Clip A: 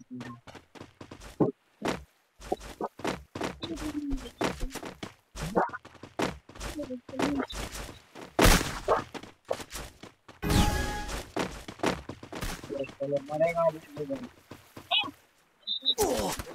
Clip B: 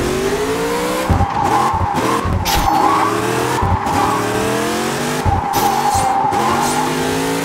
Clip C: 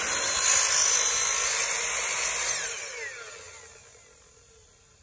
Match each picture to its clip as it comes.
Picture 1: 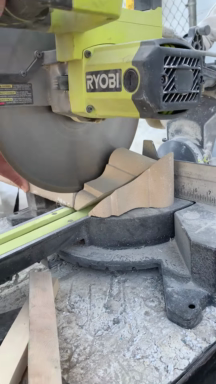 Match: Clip C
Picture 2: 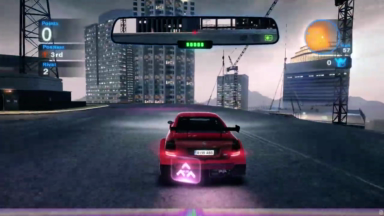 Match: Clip B